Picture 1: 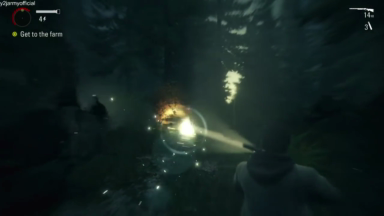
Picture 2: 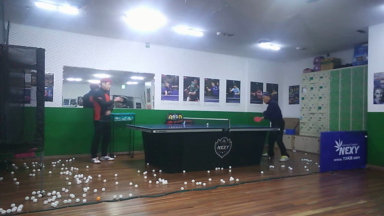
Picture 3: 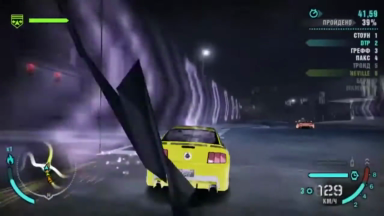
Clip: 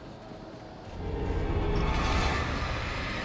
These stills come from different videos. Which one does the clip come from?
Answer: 1